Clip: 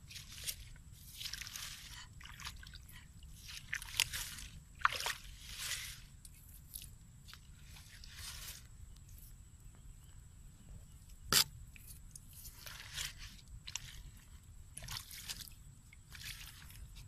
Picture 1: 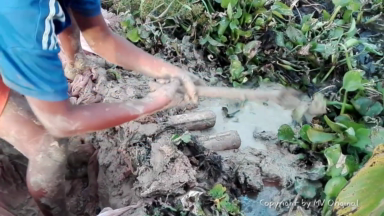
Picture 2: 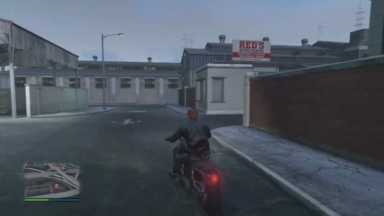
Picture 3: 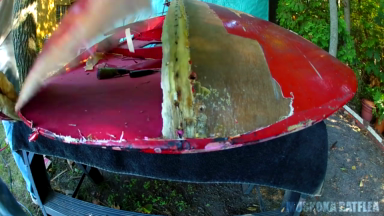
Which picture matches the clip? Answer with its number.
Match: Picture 1